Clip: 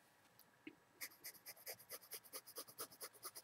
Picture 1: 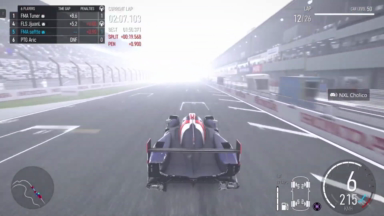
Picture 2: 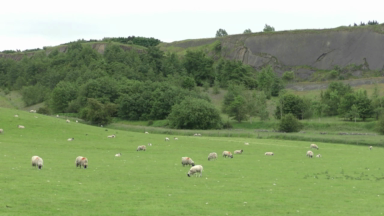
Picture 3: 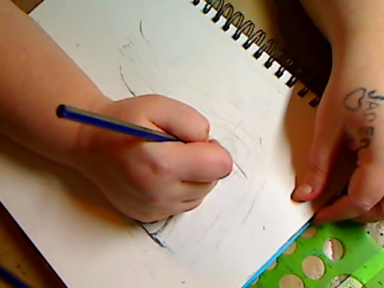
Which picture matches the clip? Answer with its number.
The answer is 3